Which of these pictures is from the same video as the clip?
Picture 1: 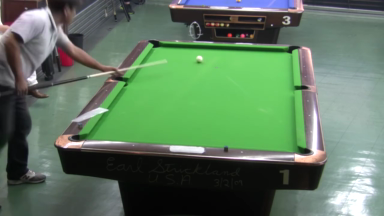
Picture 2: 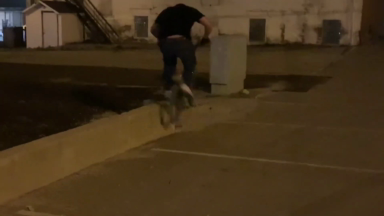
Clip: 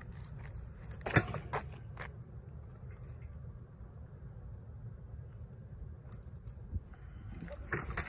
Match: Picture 2